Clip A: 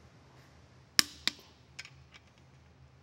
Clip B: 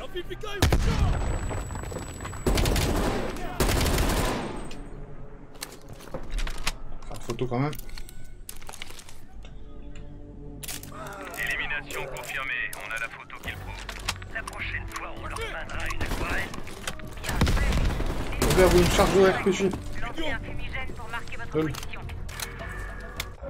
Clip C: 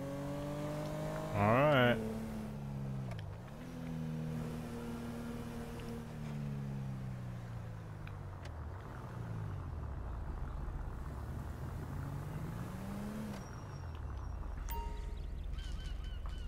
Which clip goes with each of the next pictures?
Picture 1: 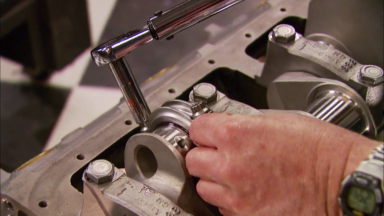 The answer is A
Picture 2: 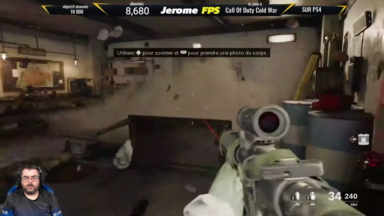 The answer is B